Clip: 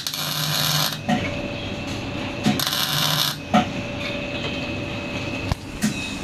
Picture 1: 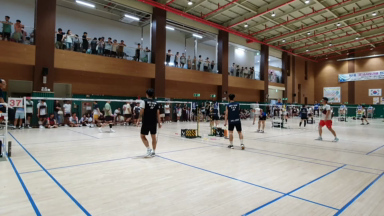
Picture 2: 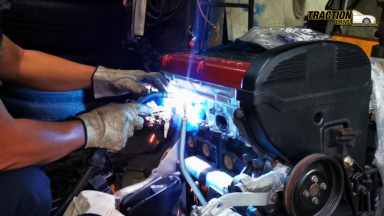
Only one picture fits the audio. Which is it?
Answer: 2